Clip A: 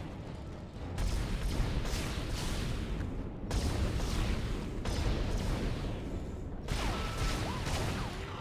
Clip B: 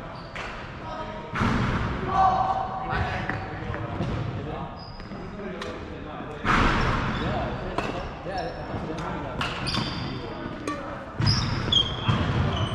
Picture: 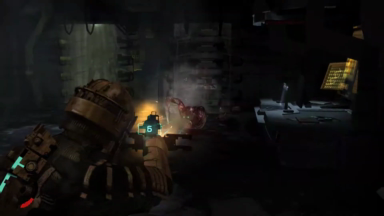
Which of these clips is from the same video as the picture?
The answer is A